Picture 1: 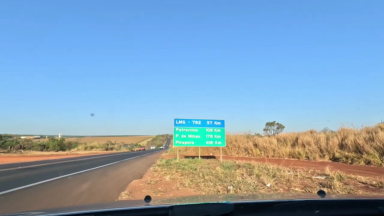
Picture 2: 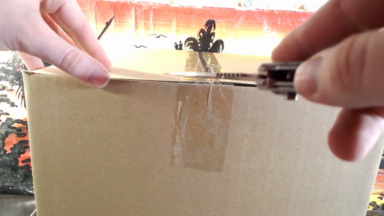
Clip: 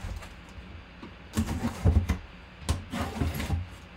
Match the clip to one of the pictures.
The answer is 2